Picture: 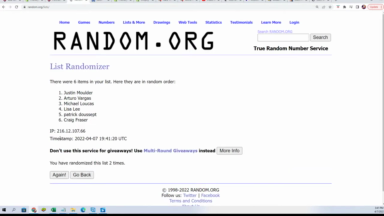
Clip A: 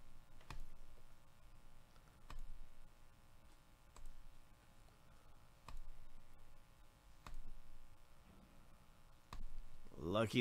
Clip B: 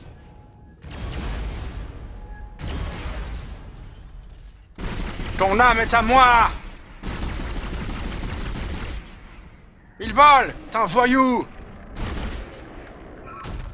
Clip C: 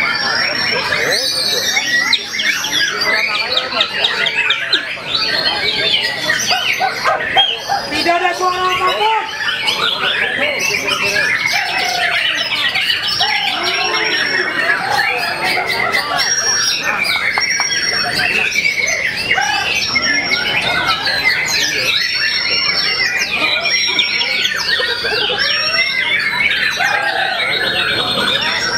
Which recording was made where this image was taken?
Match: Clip A